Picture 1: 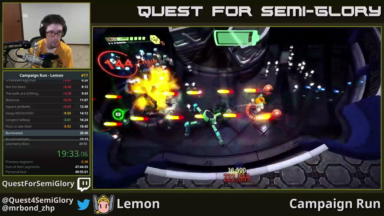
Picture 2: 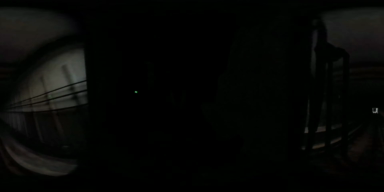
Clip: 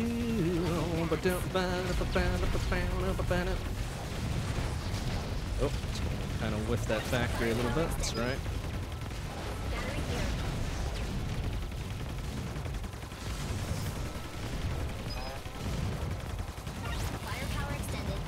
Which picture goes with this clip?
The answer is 1